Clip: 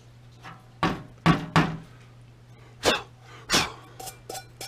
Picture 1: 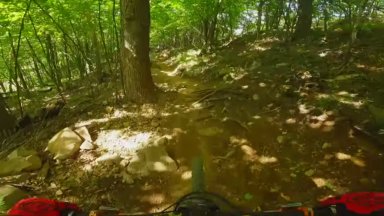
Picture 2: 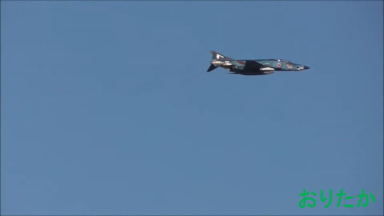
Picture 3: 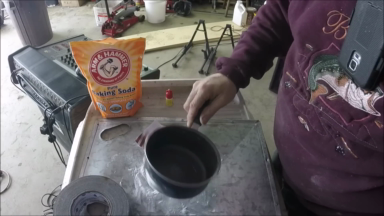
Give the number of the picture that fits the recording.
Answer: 3